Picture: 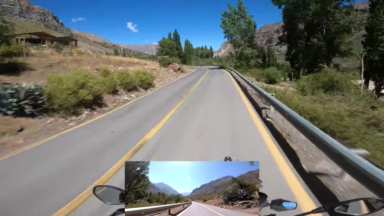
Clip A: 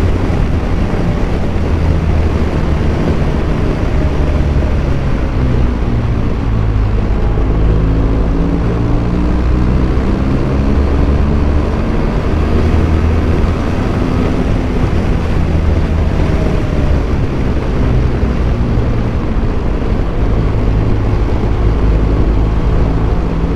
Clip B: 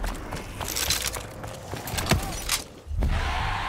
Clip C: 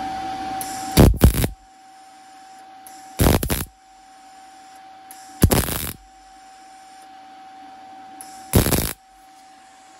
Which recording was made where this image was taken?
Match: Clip A